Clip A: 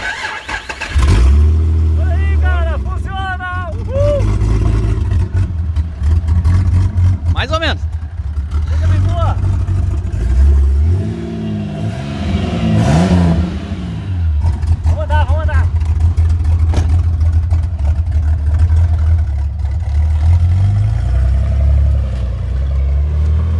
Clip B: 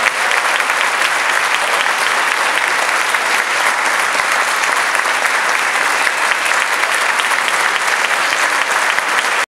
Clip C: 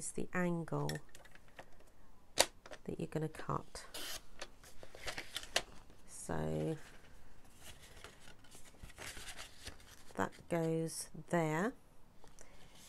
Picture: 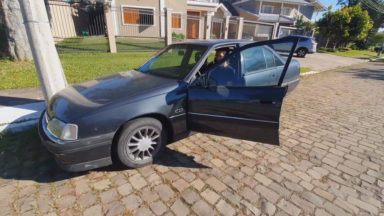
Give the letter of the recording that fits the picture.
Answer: A